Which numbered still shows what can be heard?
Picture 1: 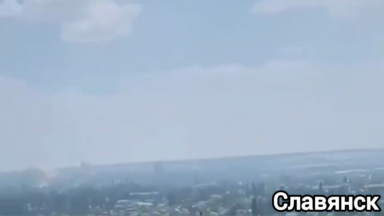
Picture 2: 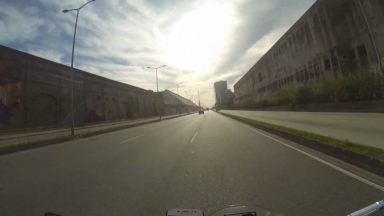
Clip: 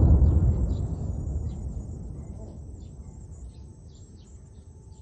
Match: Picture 1